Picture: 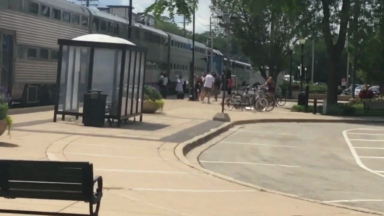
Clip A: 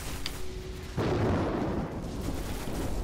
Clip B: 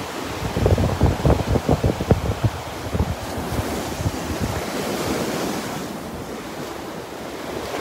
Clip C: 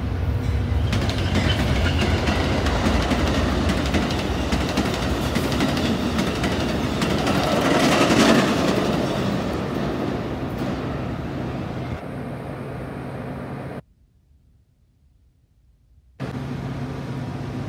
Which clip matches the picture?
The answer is C